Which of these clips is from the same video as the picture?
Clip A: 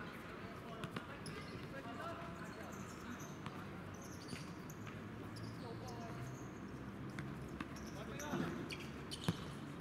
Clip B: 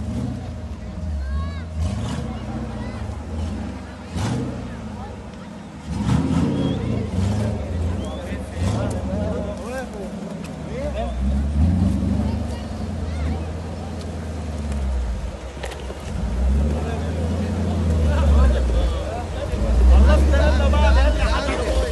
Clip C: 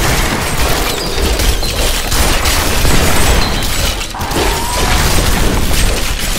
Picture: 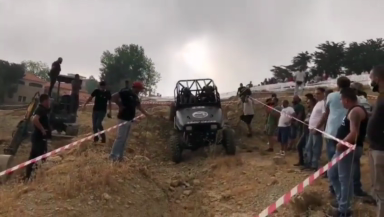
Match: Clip B